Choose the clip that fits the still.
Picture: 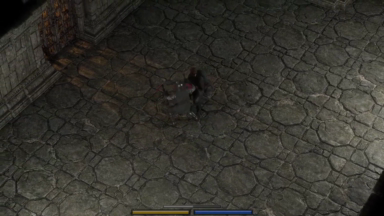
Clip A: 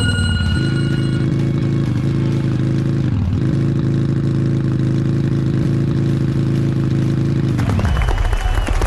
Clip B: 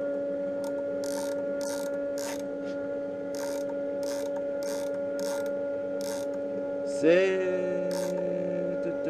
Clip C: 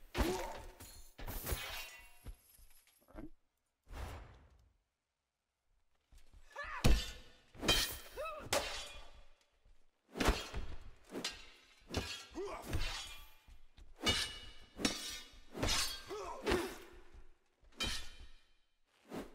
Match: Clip C